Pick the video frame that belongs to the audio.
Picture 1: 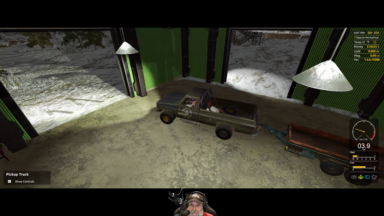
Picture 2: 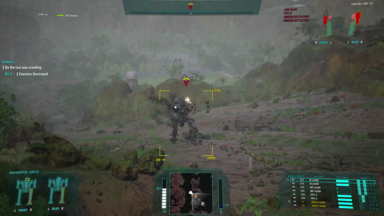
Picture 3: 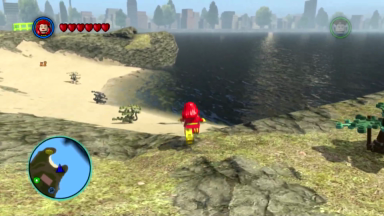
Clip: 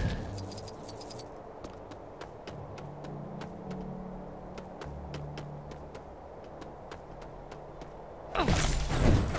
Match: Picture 3